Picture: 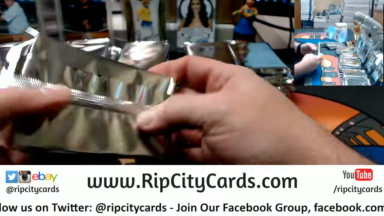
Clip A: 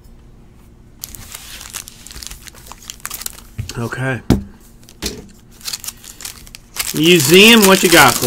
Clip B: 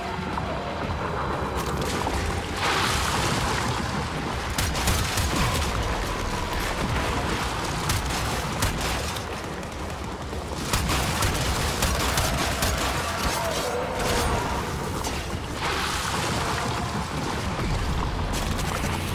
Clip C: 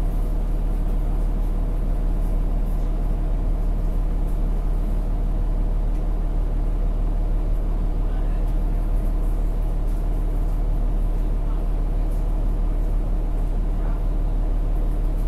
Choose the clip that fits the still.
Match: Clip A